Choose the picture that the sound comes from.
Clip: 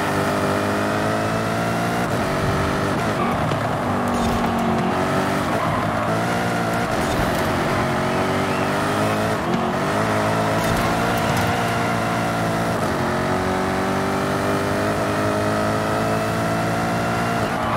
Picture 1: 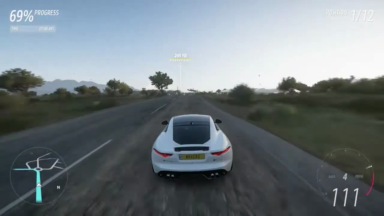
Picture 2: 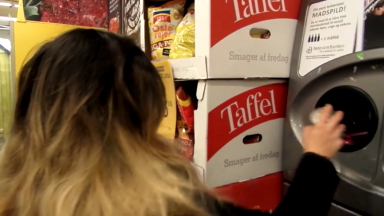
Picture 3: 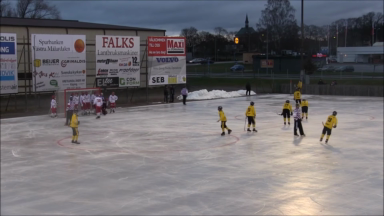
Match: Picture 1